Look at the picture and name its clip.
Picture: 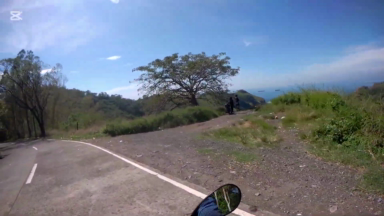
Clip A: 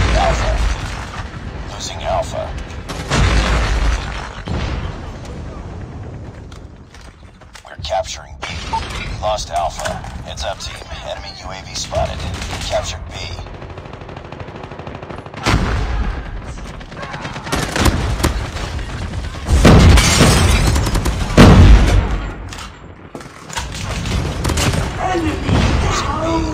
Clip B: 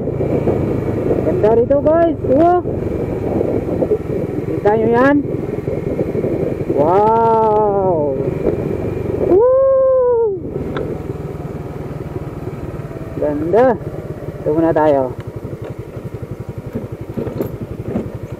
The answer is B